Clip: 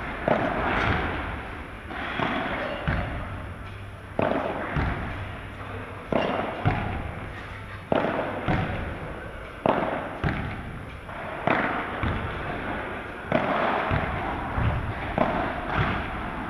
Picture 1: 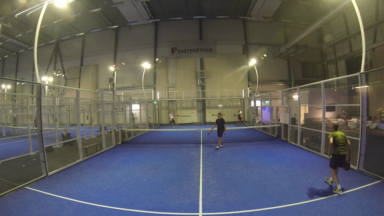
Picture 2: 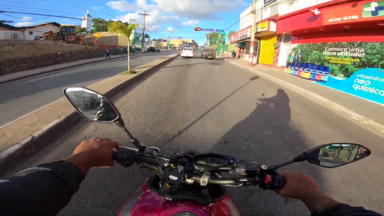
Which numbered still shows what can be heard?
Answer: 1